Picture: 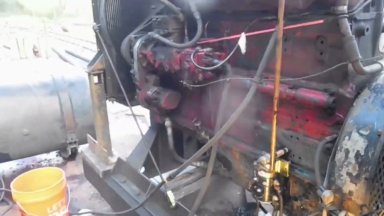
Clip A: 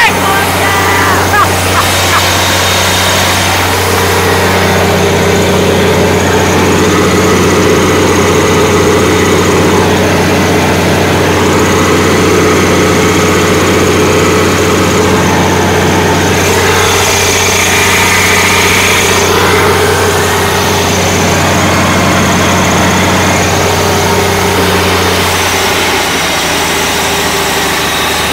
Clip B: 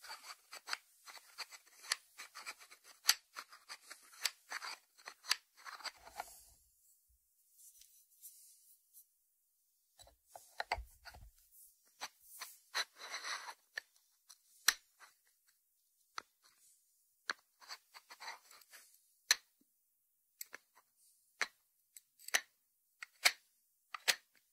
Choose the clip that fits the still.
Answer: A